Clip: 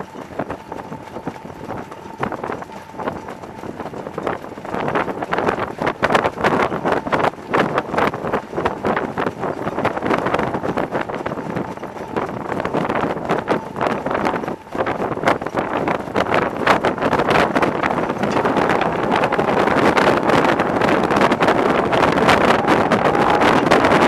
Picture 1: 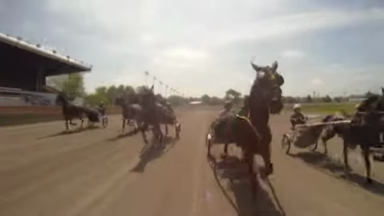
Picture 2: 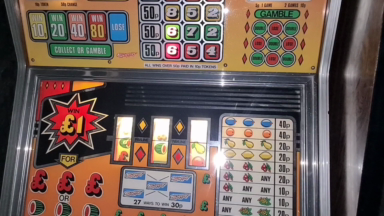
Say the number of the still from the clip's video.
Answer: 1